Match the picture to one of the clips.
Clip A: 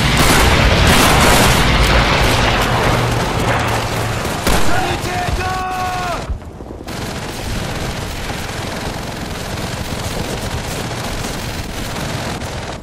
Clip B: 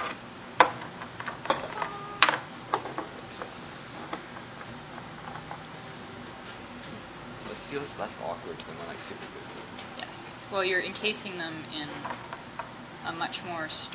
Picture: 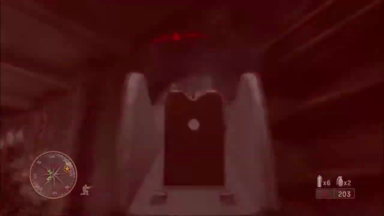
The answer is A